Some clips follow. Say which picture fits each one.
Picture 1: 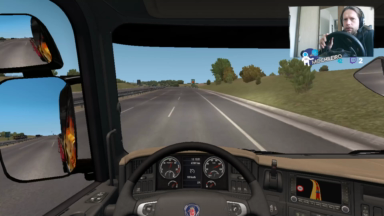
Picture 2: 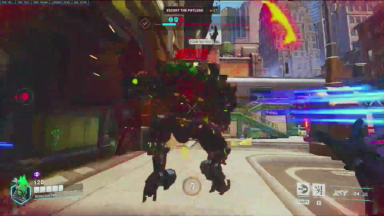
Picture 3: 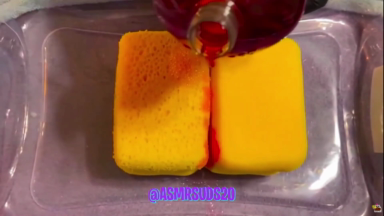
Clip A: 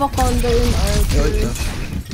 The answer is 2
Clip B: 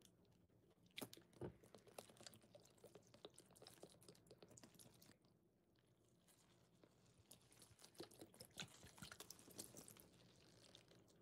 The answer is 3